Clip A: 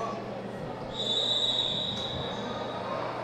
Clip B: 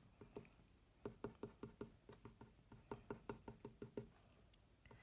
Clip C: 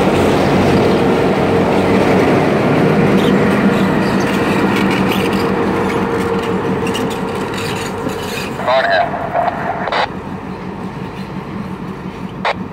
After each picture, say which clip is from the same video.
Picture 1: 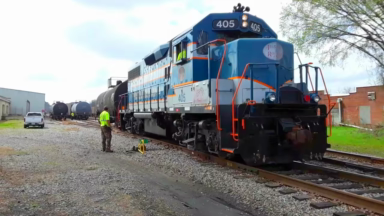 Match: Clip C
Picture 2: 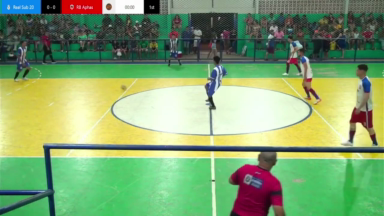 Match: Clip A